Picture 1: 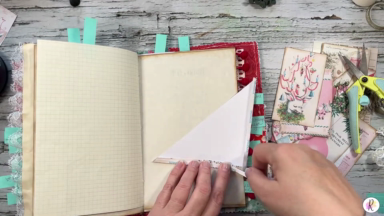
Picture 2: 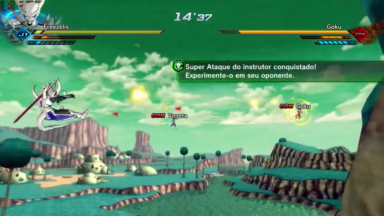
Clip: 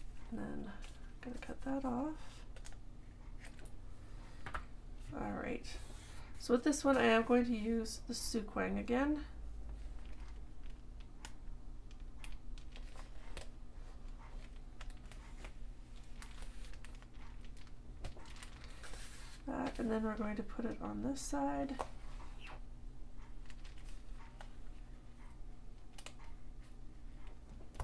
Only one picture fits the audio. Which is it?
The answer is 1